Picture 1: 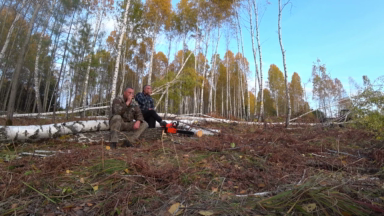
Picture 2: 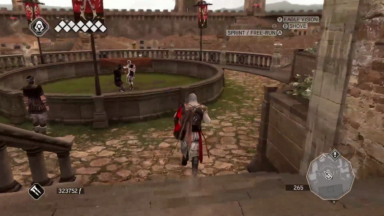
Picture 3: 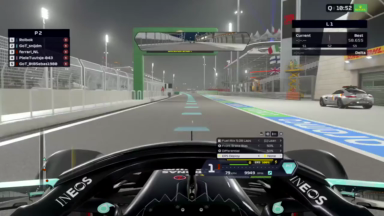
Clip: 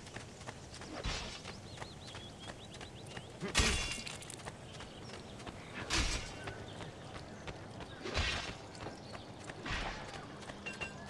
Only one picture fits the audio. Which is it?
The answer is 2